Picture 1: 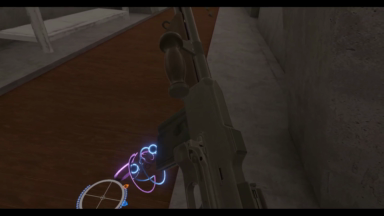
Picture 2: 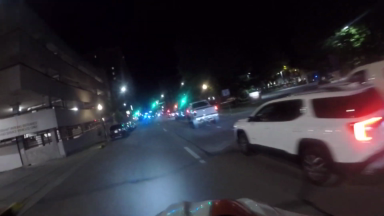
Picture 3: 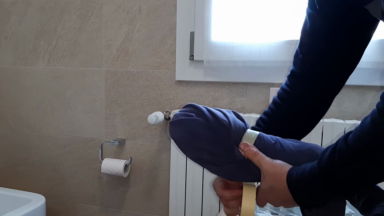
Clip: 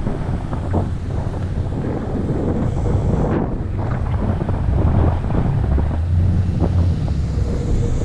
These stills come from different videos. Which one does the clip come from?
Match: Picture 2